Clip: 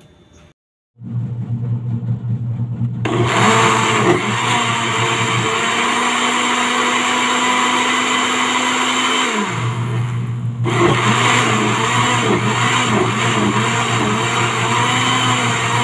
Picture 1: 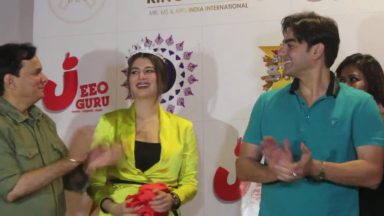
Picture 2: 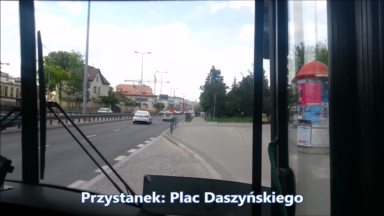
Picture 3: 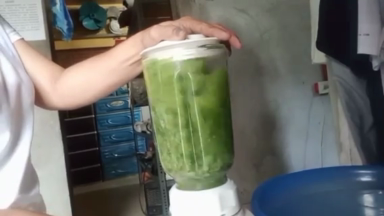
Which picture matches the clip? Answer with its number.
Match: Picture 3